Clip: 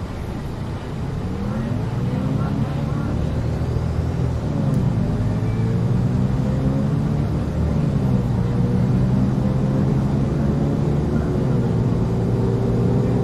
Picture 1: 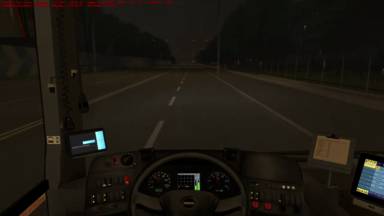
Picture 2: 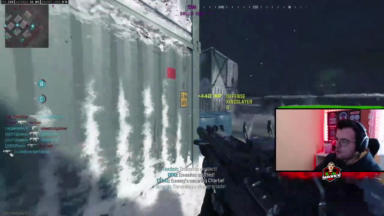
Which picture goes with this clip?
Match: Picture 1